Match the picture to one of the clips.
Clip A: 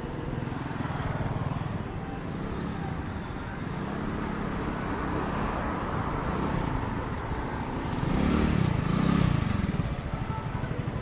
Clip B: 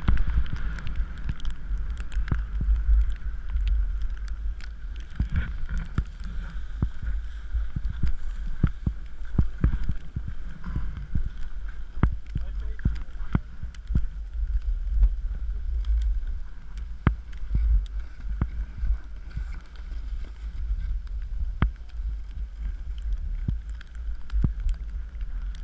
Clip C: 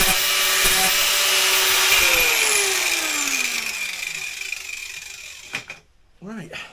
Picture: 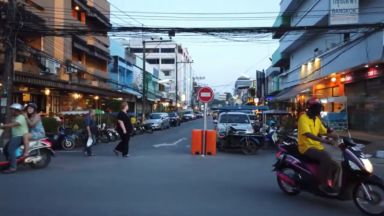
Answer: A